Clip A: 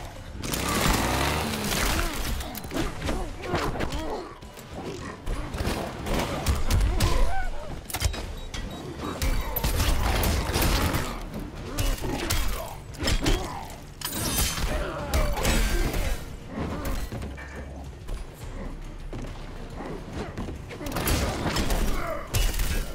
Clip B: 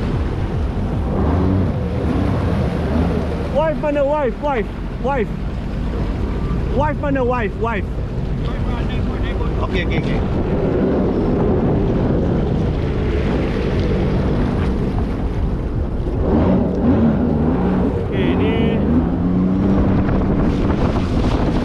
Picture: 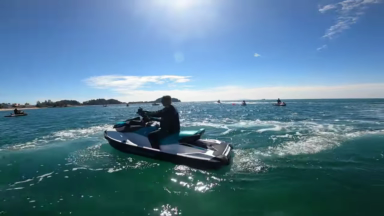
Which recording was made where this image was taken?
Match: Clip B